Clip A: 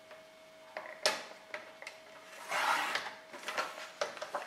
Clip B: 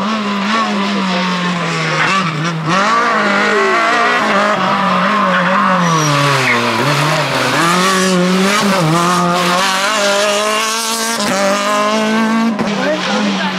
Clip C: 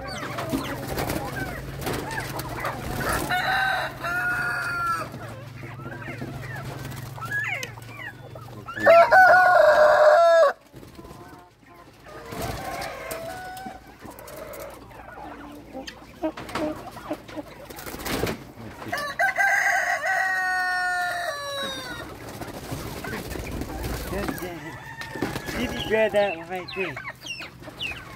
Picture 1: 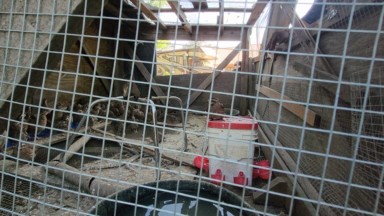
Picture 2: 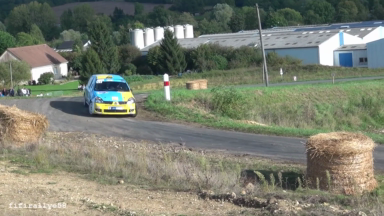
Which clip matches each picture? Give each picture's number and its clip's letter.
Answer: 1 C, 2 B